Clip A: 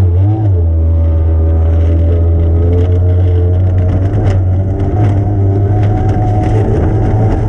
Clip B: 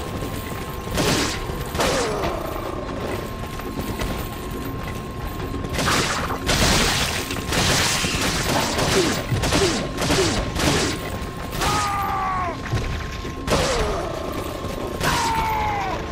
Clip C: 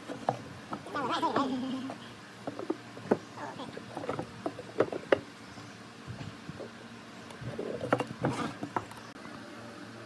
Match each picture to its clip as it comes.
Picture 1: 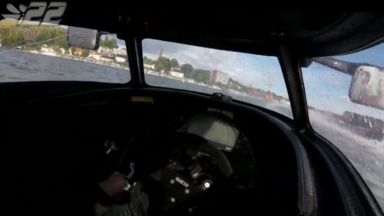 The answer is A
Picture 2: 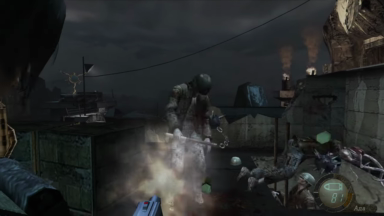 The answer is B